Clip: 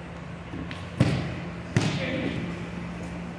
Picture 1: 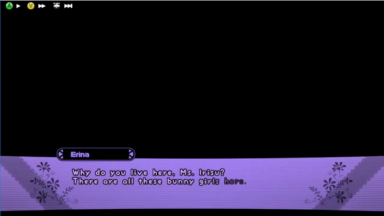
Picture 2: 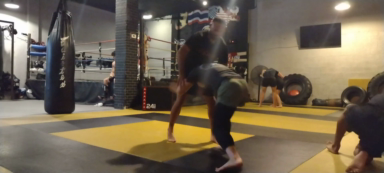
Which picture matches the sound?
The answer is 2